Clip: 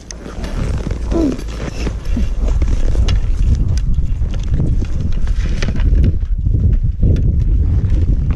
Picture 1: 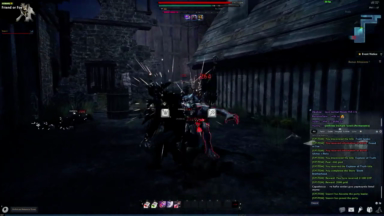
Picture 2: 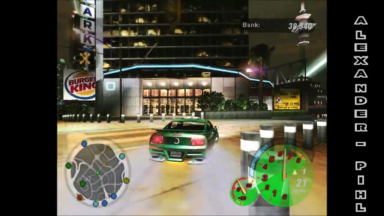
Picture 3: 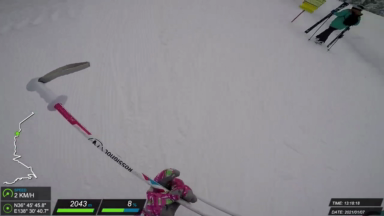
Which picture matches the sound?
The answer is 3